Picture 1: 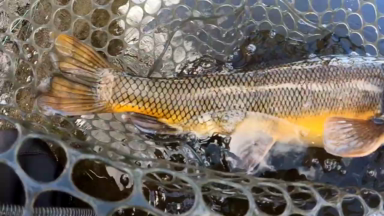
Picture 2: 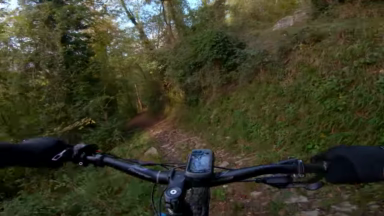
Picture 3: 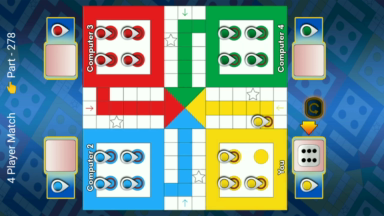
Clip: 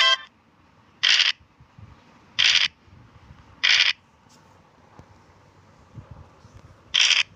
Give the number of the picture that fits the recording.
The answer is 3